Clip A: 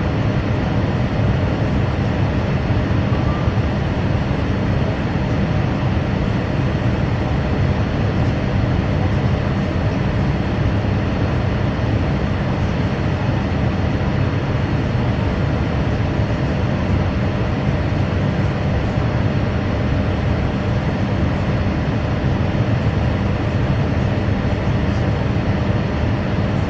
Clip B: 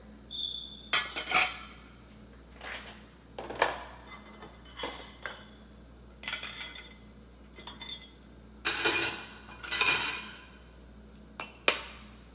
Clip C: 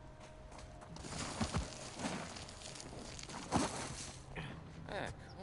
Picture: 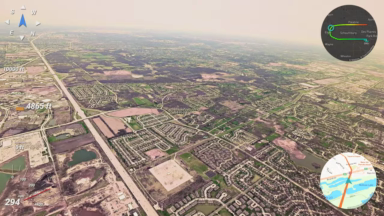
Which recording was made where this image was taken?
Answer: A